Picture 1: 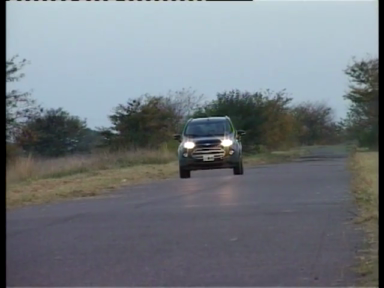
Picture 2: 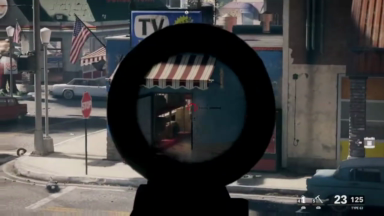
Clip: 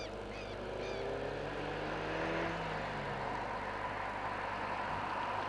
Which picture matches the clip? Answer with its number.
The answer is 1